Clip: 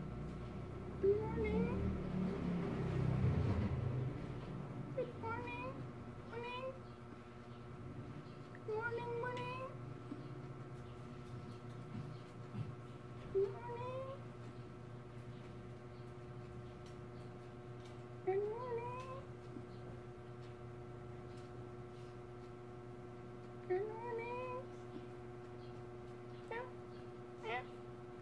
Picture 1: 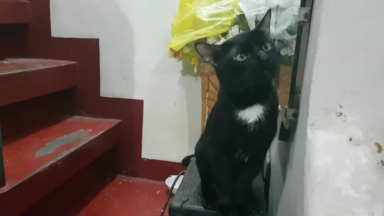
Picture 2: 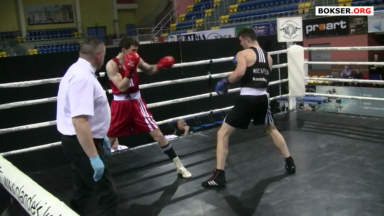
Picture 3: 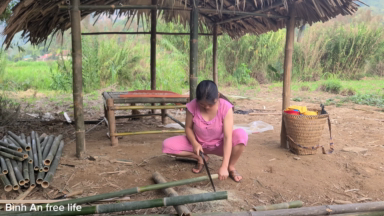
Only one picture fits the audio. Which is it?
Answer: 1